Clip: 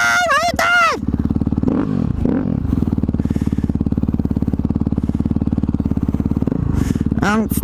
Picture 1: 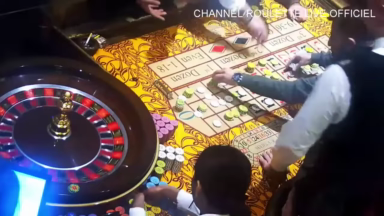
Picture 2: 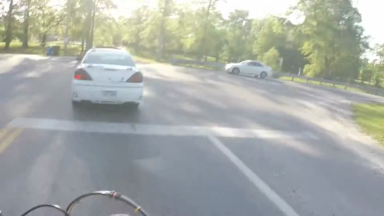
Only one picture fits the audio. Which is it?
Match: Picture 2